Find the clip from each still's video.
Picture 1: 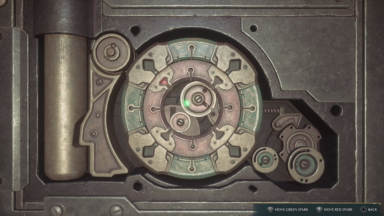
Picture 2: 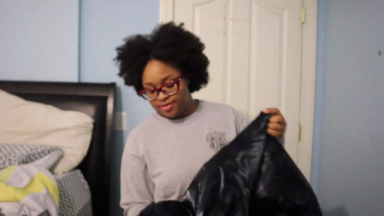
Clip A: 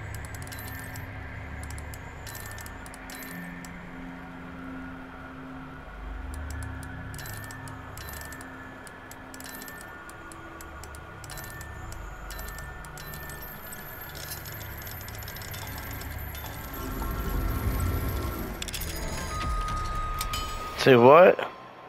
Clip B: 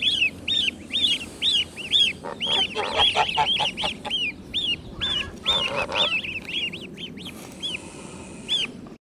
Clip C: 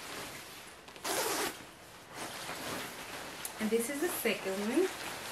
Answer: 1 A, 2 C